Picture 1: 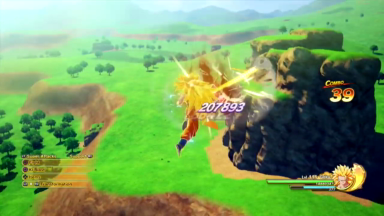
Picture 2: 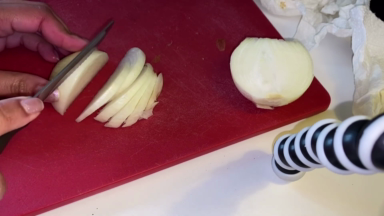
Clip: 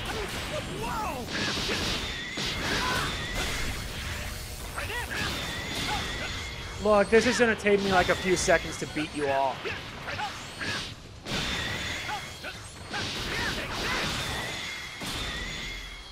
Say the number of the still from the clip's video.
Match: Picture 1